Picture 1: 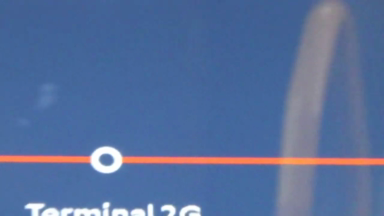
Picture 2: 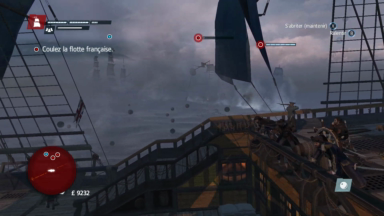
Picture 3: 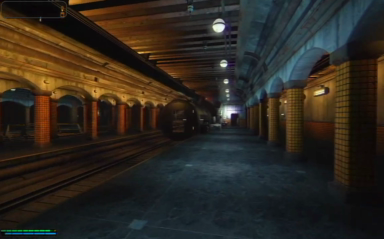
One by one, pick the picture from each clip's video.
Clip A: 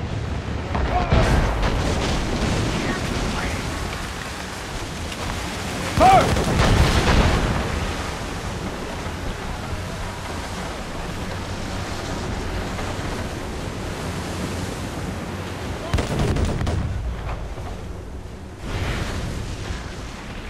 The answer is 2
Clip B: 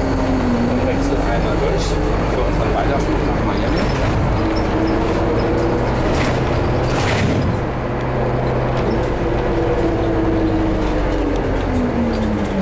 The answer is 1